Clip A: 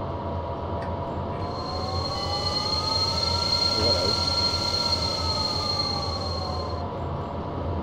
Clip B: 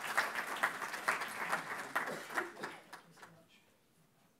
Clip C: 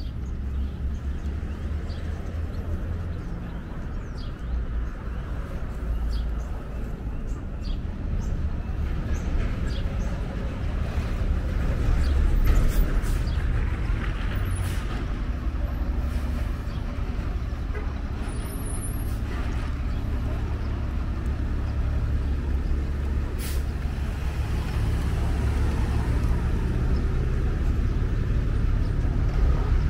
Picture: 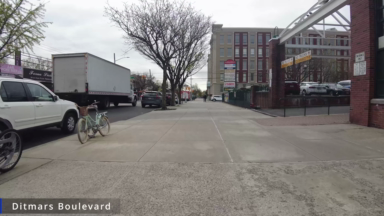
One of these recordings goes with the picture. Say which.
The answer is C